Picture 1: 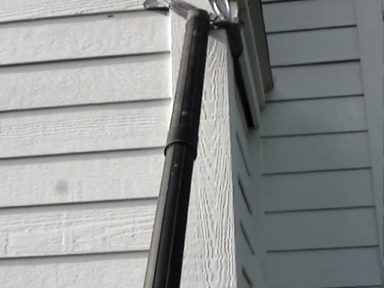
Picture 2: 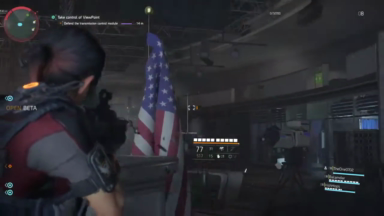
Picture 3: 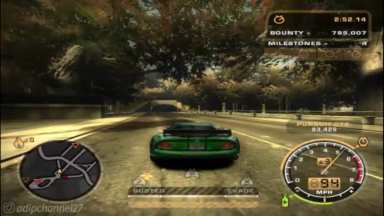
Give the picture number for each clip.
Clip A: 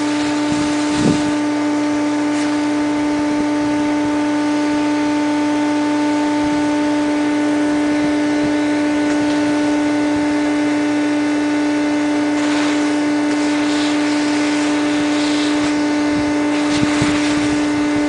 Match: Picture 1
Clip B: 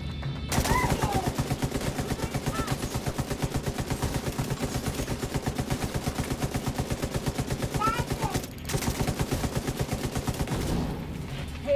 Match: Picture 2